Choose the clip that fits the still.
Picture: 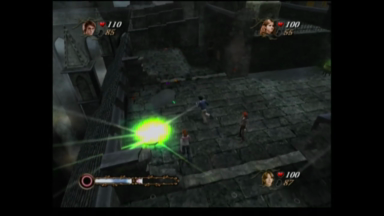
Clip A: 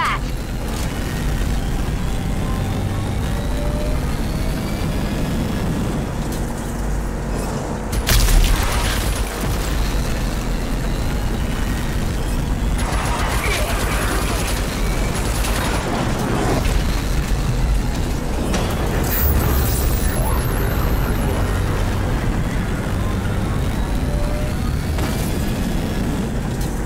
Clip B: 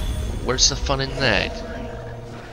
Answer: B